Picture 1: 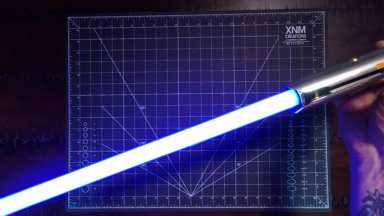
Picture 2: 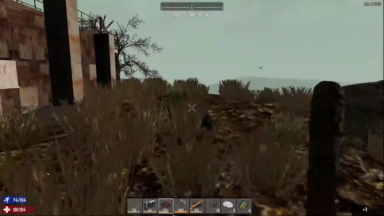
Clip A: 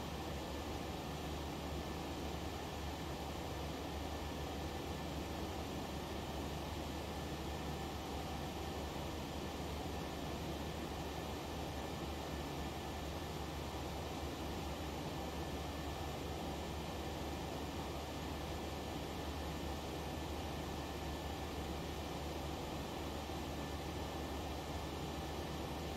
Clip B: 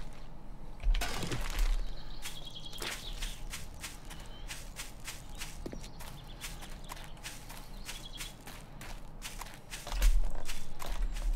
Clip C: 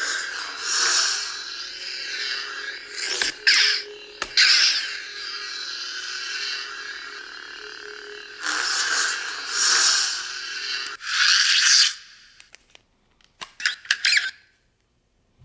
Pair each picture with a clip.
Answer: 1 C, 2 B